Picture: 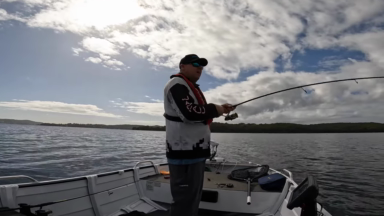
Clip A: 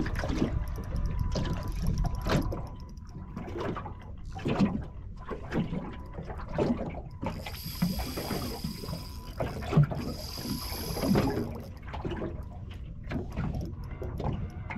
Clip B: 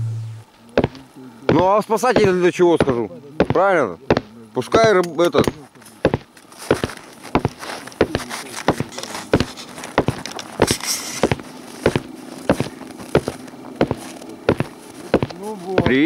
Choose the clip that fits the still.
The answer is A